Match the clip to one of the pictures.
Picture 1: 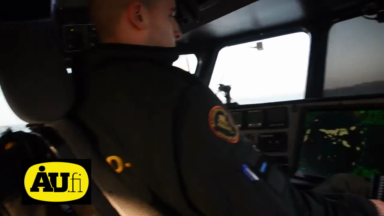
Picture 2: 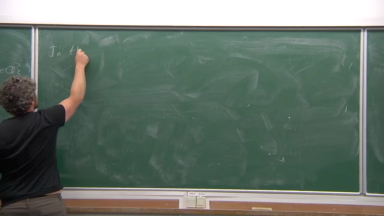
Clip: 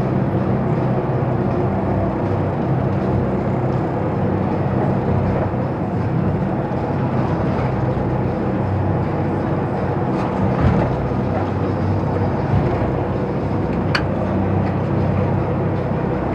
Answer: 1